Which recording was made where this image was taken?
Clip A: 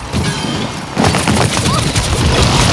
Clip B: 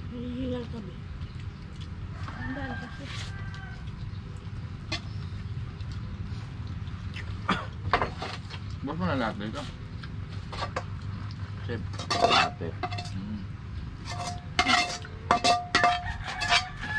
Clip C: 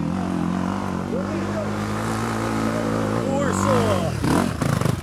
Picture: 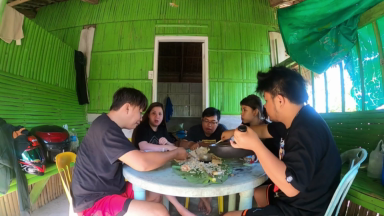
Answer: B